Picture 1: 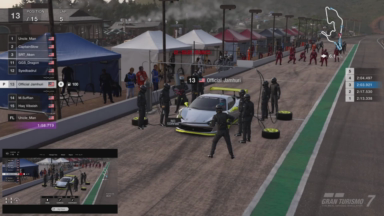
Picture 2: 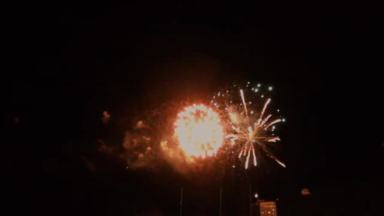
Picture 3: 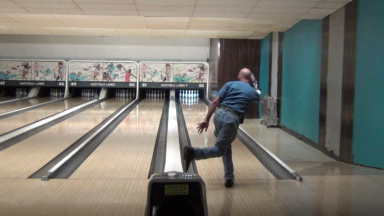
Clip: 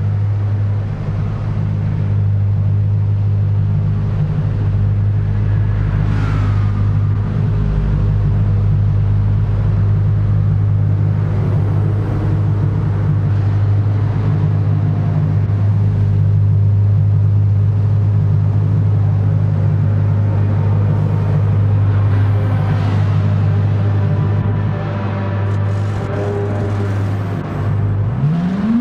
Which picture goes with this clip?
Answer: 1